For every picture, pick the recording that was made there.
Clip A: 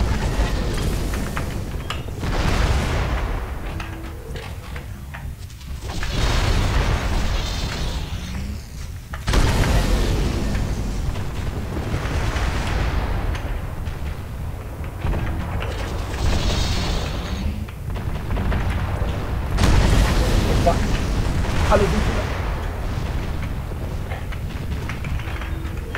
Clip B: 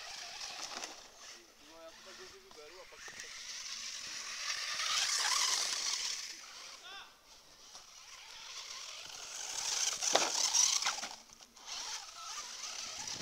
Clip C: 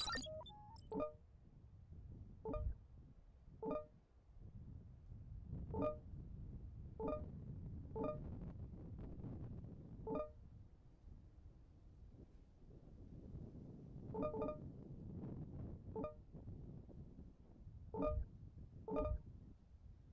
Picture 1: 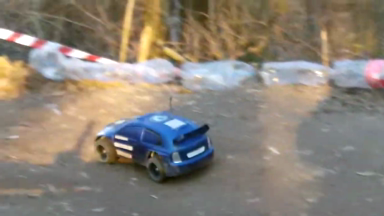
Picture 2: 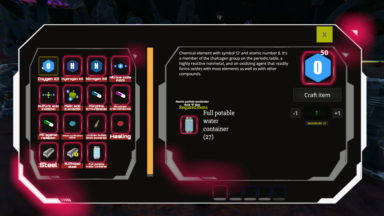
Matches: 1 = B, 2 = C